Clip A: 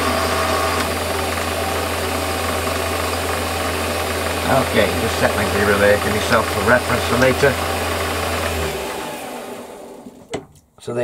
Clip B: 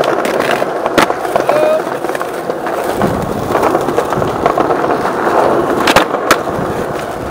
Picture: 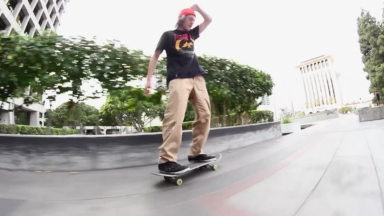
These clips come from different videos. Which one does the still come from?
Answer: B